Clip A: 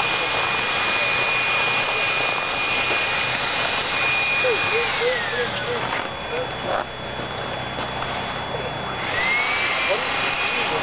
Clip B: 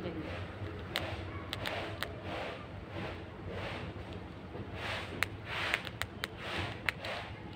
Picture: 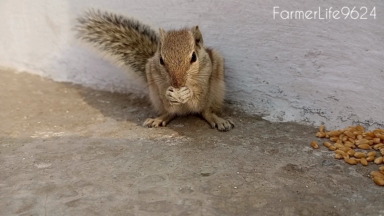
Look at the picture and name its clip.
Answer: B